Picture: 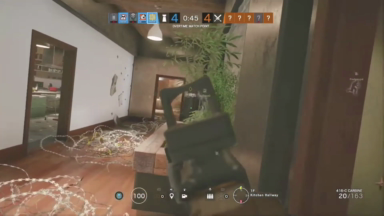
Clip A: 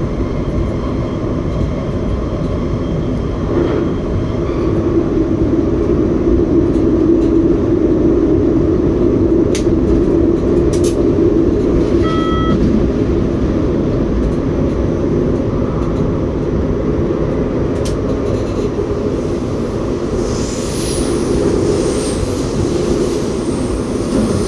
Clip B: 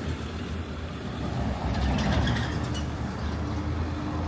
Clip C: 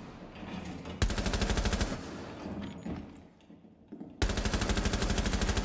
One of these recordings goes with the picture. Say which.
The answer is C